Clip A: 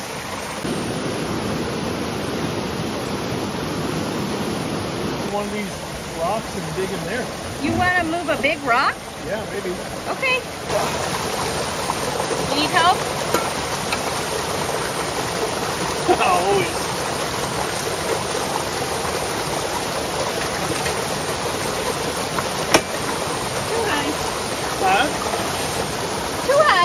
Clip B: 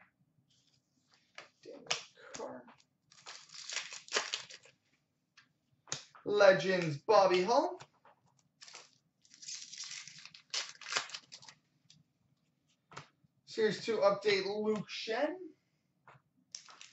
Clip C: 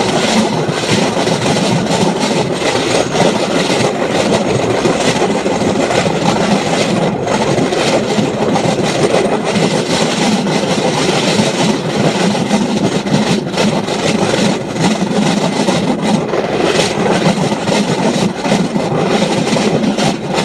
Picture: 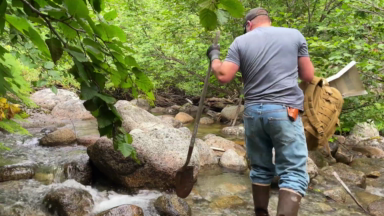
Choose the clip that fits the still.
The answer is A